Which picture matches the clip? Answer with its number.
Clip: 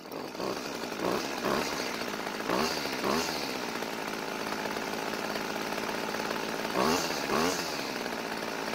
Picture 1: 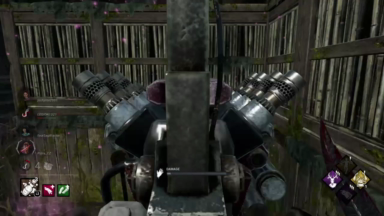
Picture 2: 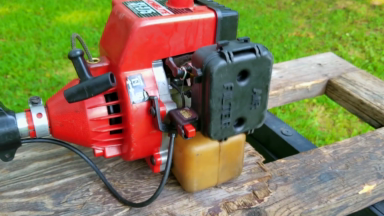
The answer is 2